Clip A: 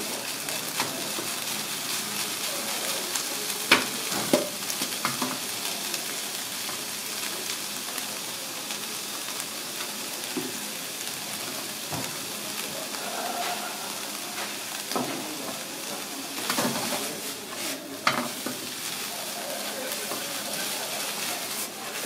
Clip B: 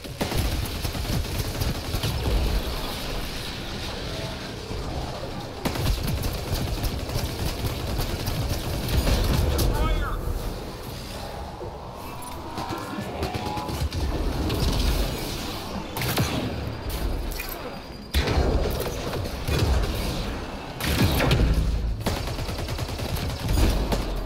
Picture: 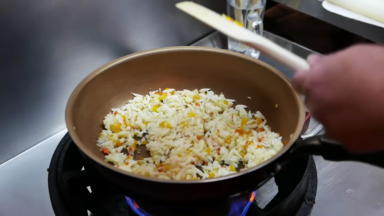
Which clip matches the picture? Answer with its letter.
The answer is A